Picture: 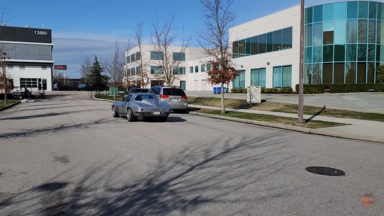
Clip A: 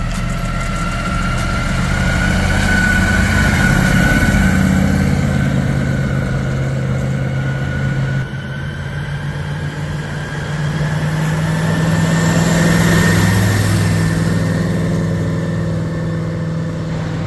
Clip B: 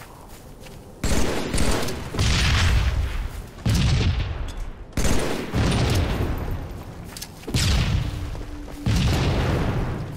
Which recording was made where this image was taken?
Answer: A